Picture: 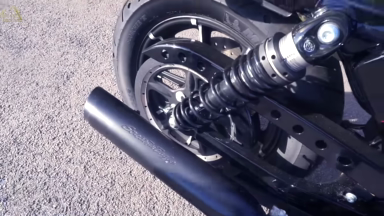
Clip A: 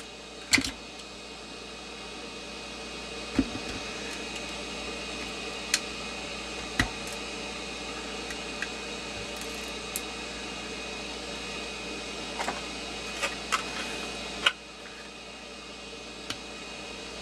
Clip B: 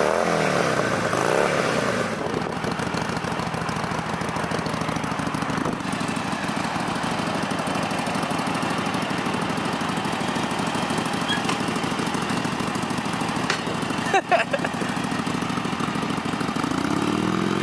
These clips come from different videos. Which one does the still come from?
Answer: B